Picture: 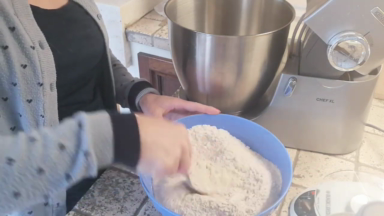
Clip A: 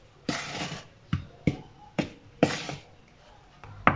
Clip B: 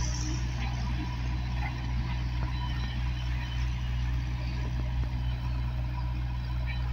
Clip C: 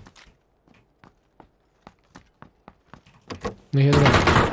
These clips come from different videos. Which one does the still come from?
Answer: A